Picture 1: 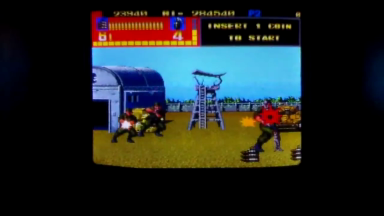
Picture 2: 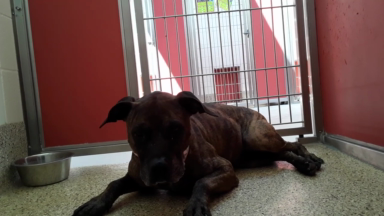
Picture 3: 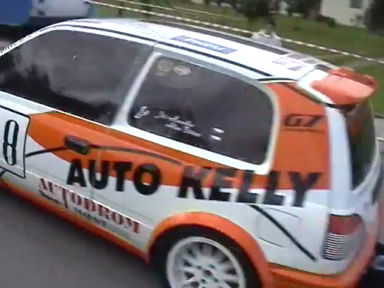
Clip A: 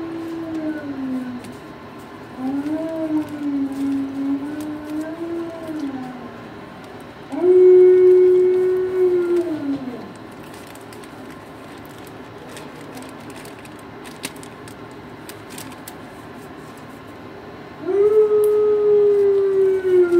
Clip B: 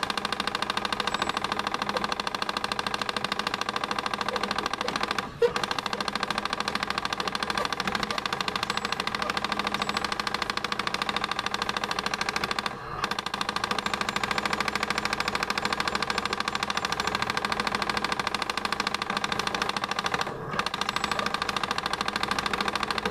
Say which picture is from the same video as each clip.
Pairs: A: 2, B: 1